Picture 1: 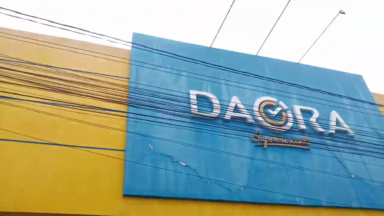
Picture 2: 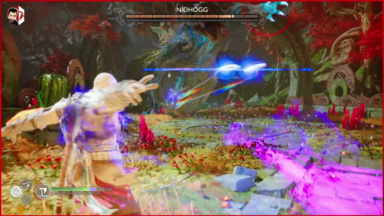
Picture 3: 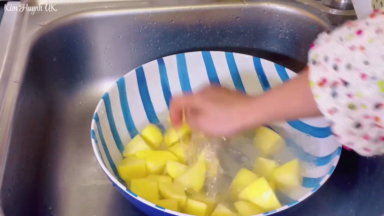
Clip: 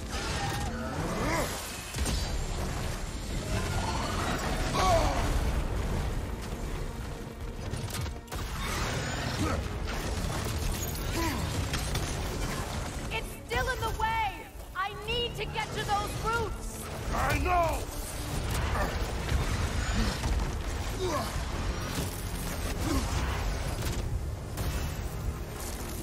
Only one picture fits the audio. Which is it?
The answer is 2